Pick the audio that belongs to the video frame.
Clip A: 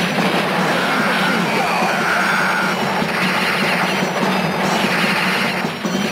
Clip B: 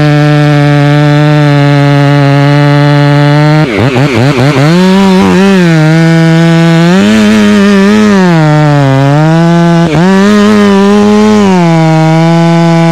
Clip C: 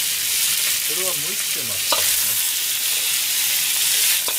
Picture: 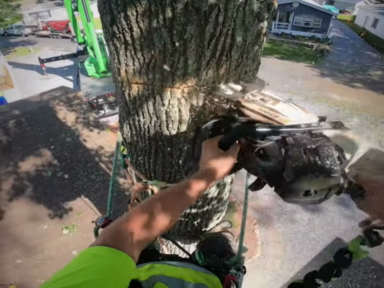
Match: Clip B